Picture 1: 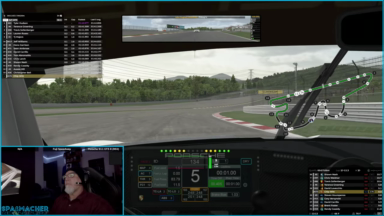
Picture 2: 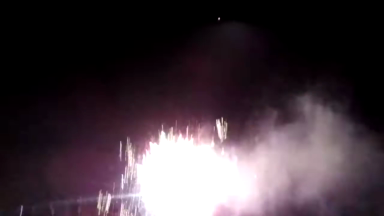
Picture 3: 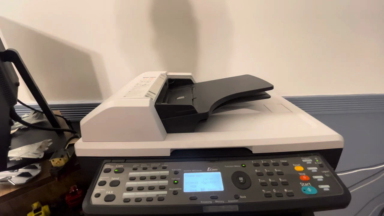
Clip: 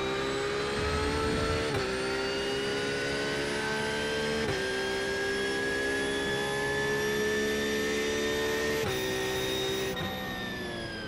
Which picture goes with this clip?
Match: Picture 1